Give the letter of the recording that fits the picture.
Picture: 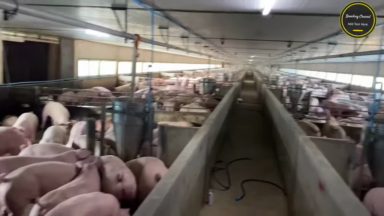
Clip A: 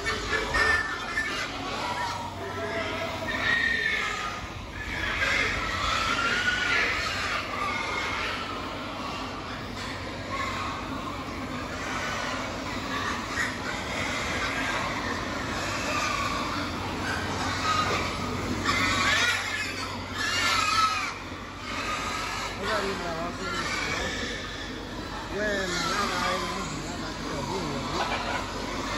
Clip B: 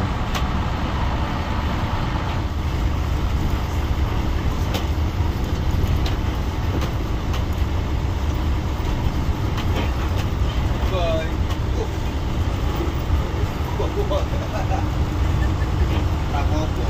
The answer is A